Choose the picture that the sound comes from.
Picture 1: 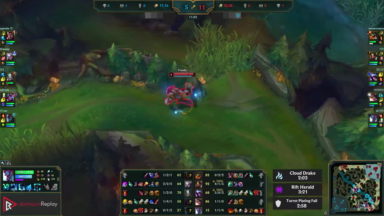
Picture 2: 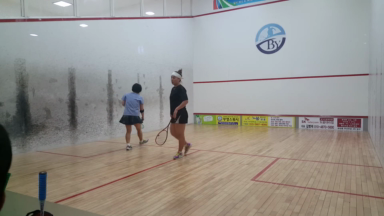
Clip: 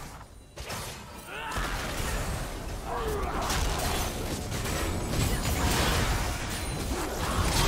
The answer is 1